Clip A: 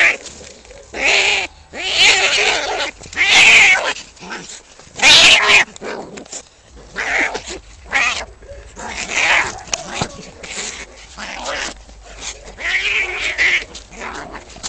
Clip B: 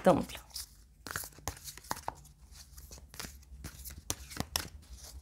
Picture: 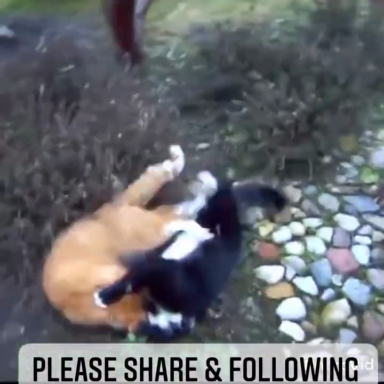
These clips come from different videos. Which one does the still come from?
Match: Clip A